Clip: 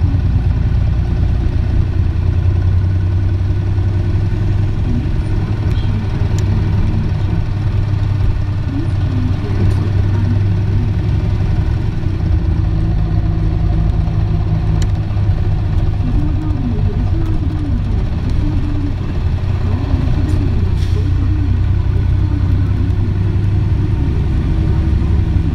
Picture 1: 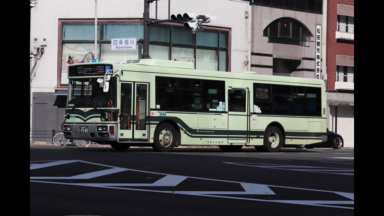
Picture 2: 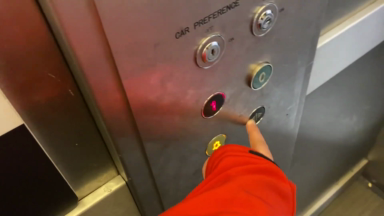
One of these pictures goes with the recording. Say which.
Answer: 1